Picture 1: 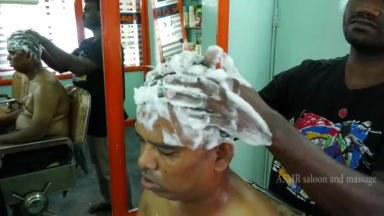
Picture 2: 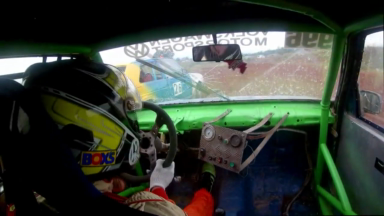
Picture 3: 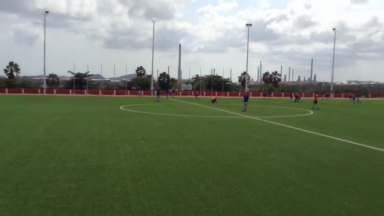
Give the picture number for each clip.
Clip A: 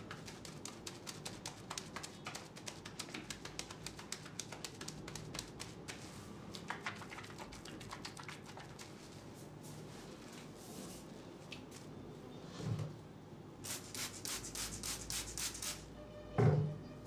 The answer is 1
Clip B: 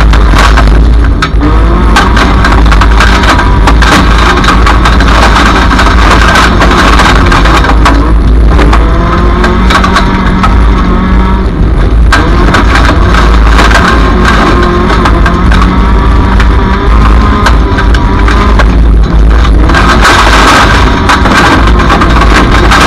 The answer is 2